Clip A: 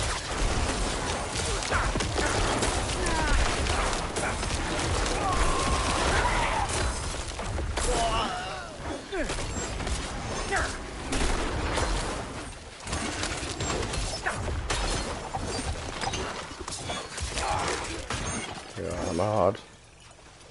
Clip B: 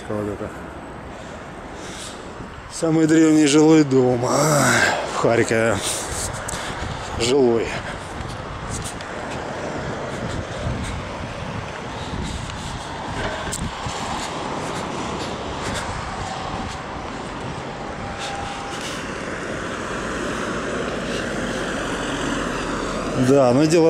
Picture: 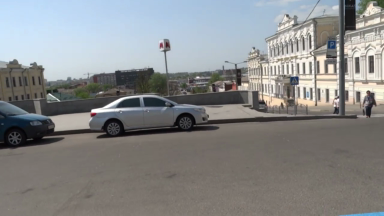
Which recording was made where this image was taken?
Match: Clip B